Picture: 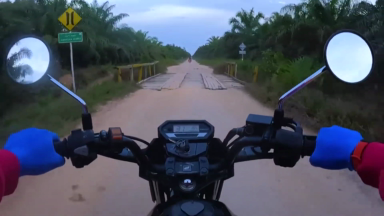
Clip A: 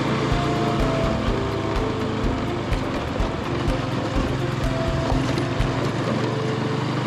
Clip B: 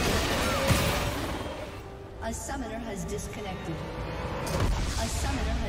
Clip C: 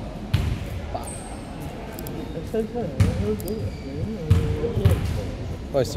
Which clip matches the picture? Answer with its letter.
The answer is A